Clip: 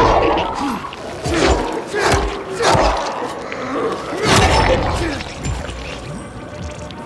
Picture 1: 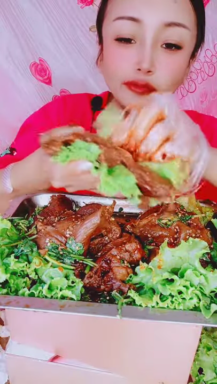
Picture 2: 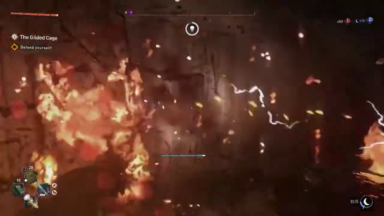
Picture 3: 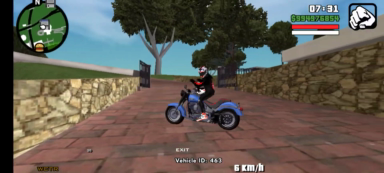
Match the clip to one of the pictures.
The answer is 2